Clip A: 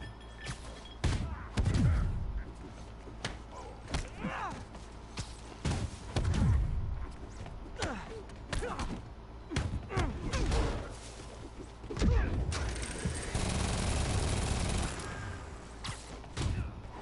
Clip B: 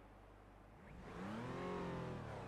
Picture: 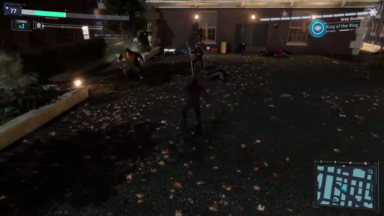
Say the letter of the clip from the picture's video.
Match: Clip A